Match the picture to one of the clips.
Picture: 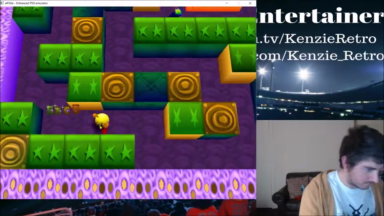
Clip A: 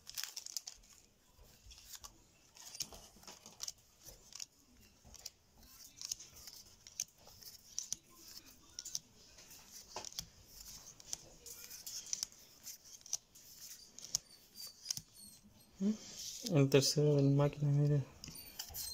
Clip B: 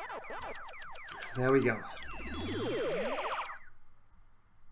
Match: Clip B